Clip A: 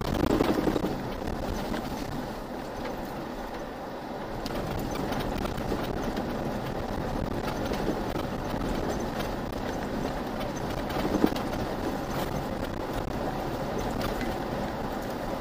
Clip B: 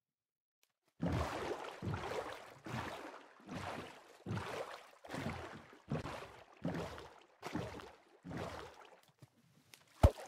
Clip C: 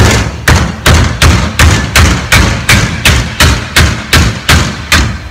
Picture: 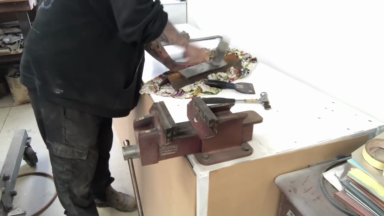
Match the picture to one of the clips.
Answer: C